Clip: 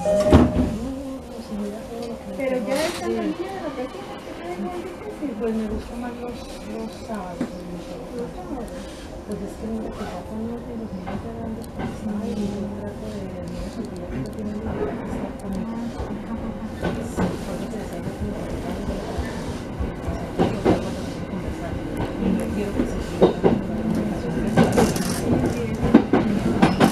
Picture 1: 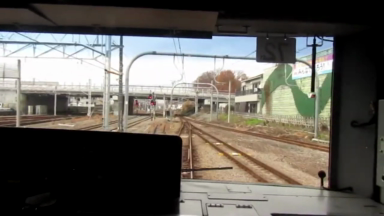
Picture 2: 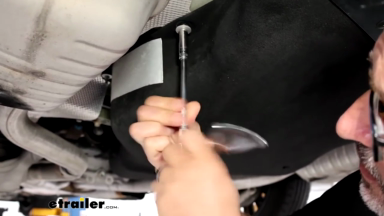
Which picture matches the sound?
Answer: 1